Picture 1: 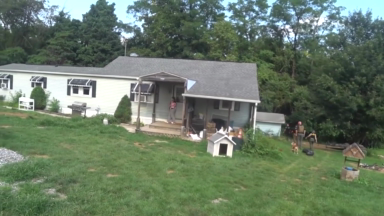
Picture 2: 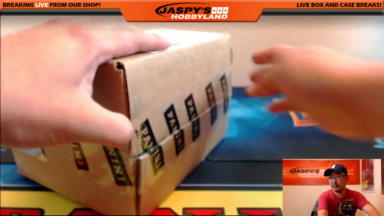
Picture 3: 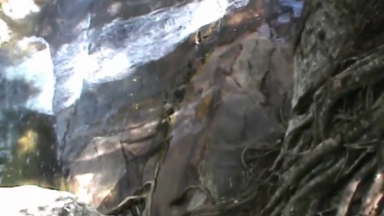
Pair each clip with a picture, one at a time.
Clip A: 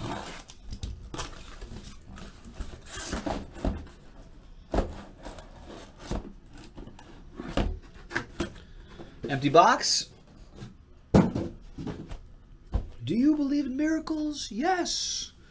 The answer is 2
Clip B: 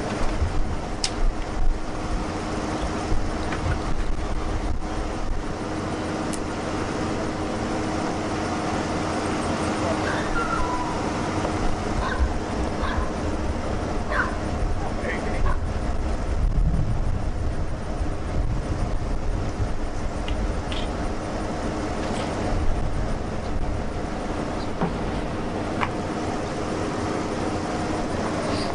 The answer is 1